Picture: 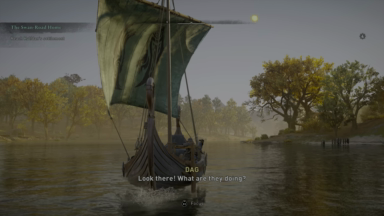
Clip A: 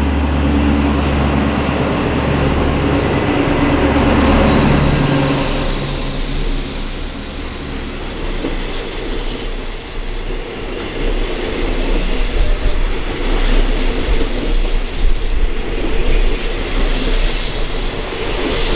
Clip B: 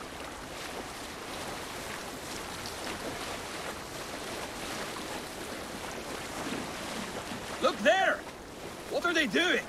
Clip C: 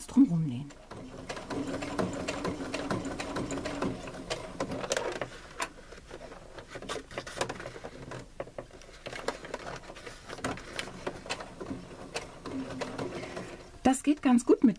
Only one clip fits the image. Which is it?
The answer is B